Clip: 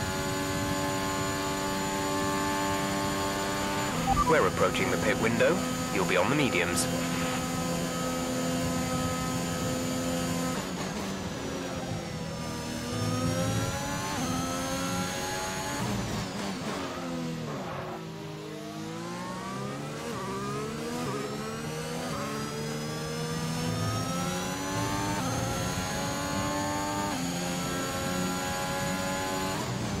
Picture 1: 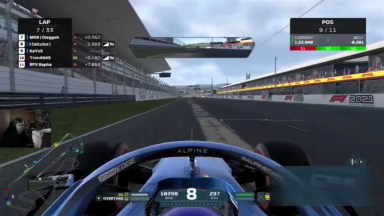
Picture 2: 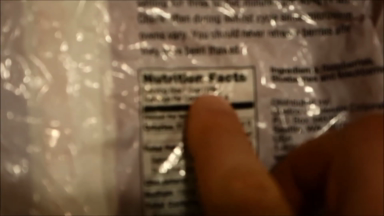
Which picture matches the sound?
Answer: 1